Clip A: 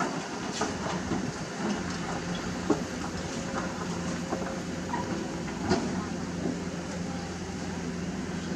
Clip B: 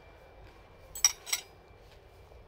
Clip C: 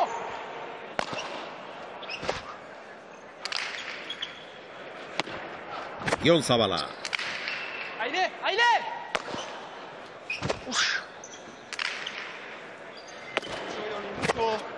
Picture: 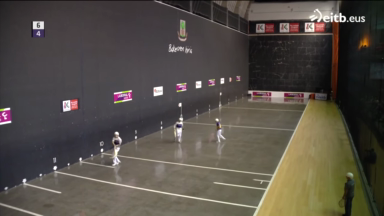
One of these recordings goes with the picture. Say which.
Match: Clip C